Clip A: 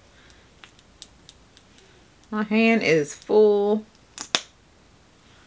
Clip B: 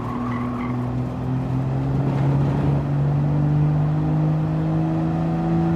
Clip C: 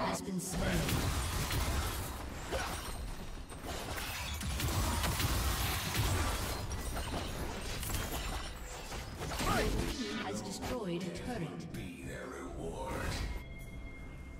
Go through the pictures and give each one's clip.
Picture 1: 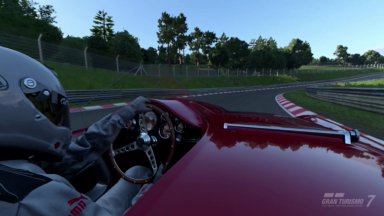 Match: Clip B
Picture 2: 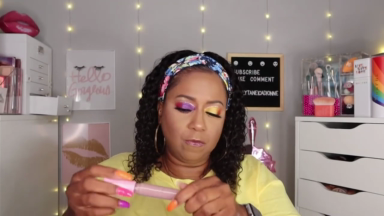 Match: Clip A